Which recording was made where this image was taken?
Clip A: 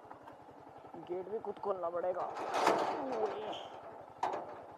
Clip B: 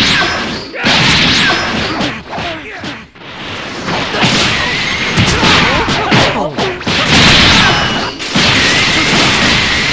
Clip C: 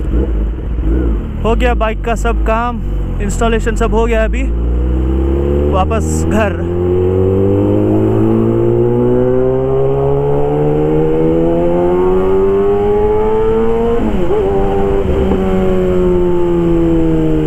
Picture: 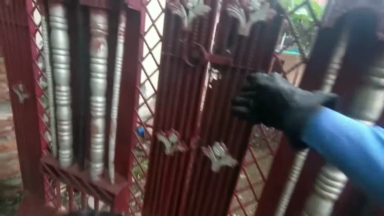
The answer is A